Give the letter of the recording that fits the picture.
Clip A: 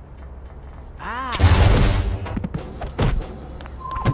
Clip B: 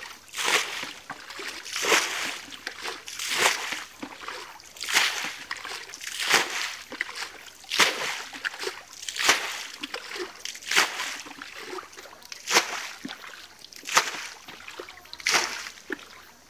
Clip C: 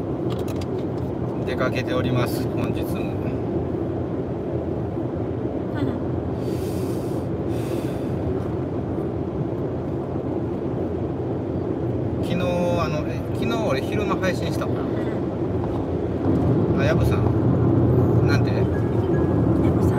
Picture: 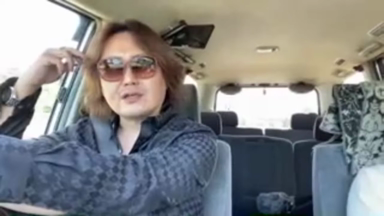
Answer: C